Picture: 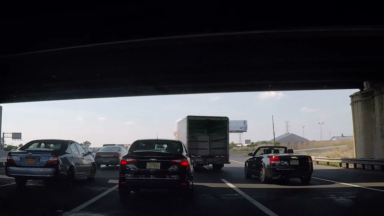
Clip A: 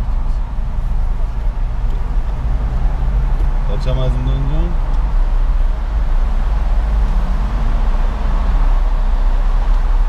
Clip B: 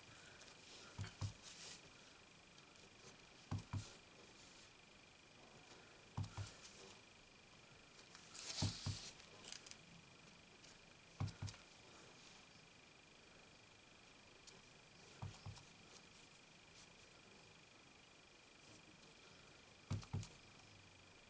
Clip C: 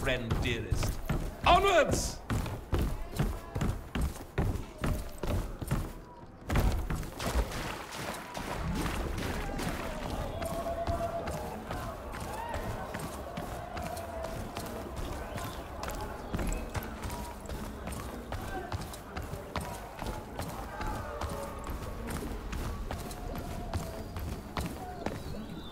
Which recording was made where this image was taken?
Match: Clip A